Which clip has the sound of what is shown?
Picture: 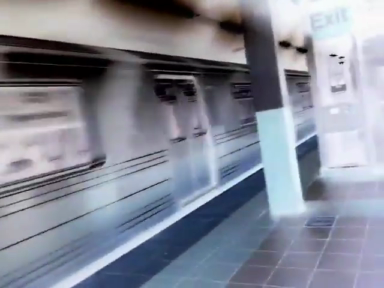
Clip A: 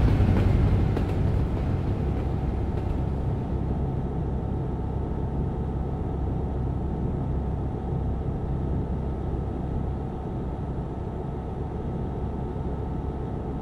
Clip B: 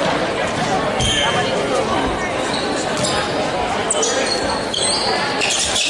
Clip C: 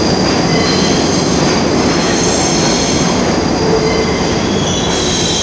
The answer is C